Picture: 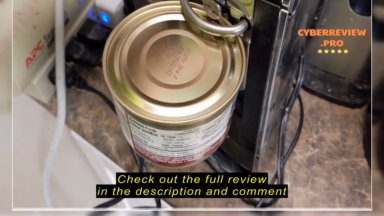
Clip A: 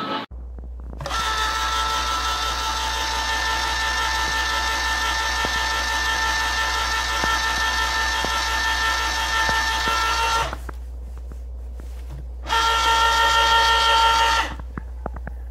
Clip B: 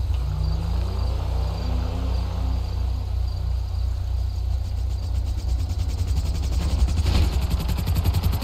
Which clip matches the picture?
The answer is A